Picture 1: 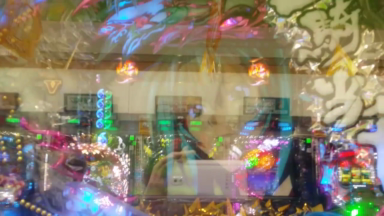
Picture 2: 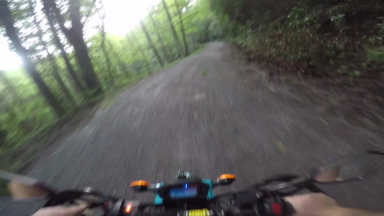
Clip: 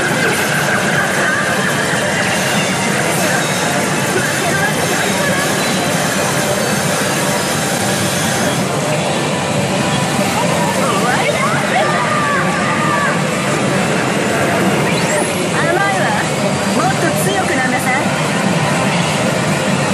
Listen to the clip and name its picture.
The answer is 1